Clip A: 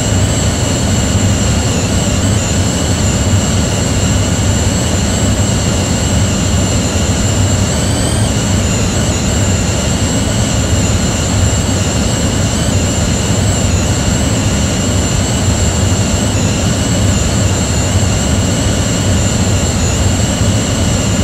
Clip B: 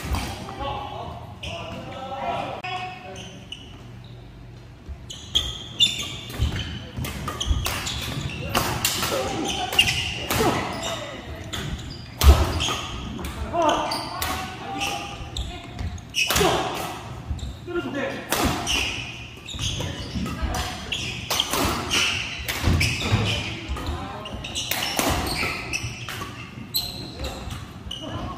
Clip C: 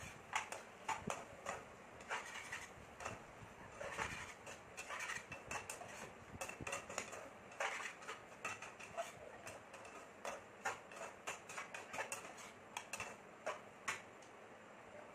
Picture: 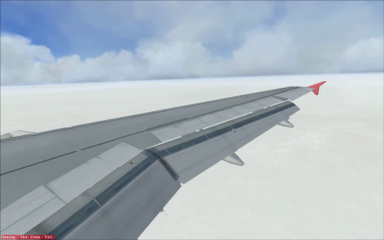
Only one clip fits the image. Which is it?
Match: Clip A